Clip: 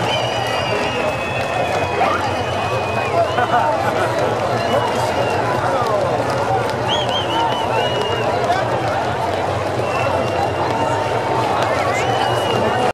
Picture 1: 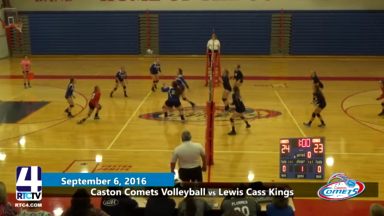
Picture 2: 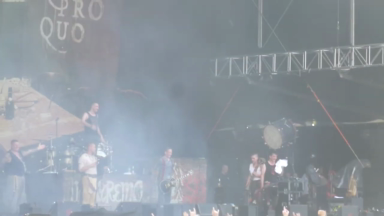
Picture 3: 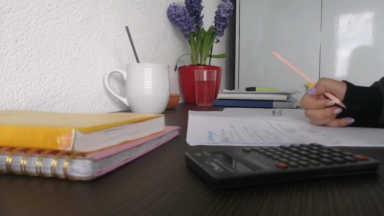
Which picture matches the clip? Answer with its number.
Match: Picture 2